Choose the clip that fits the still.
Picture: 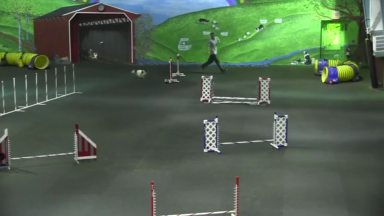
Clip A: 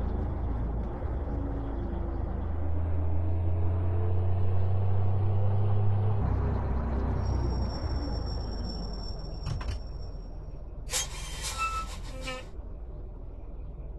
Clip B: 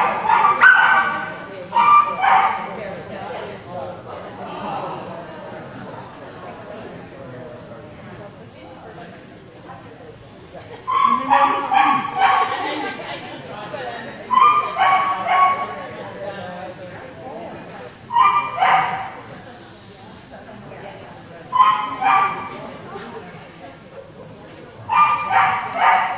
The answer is B